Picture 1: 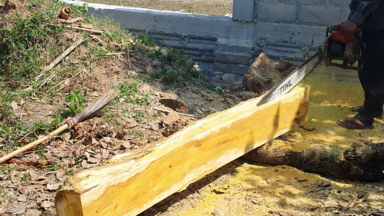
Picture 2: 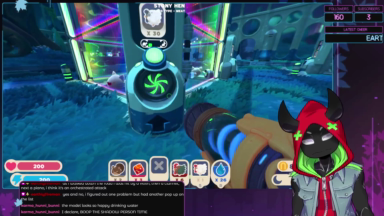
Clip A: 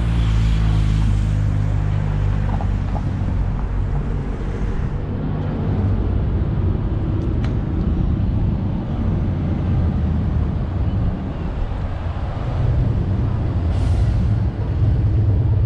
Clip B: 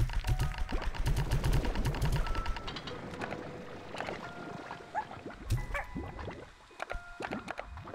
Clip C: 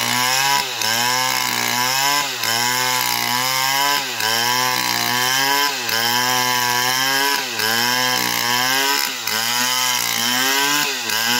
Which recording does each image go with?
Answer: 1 C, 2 B